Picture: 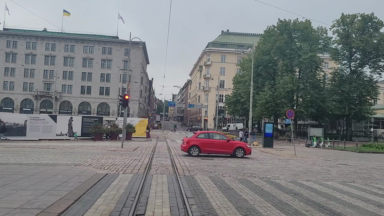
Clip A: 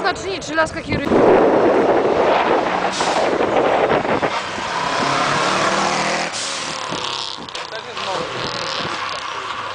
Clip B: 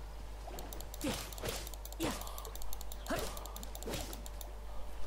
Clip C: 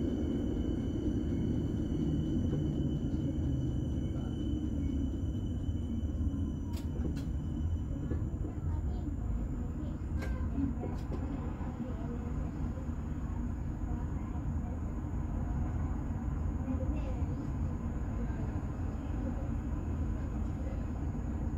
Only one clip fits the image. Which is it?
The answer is C